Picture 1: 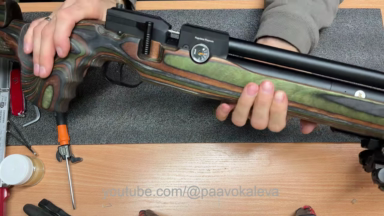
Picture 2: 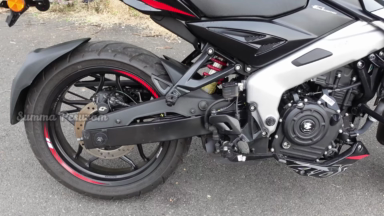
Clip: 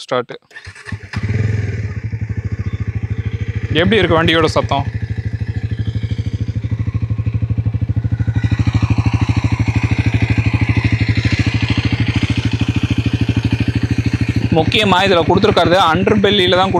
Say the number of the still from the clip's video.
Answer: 2